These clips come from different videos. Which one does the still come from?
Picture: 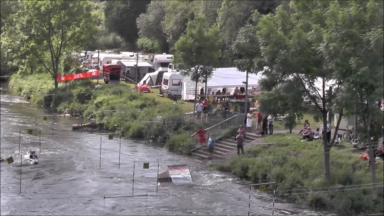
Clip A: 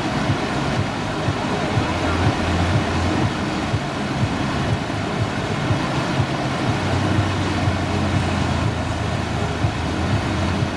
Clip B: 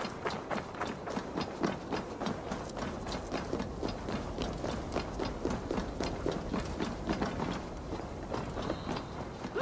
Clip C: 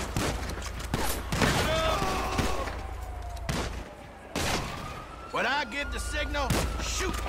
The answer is A